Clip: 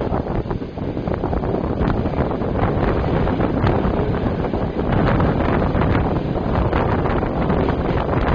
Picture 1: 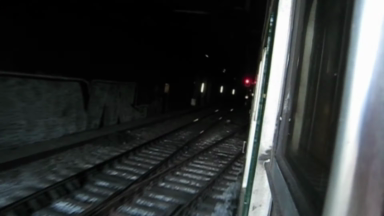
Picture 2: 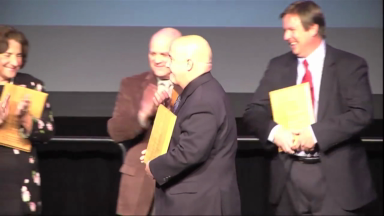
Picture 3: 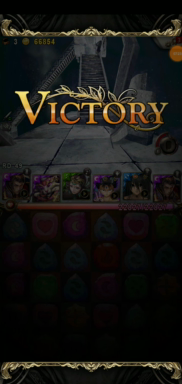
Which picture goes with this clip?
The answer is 1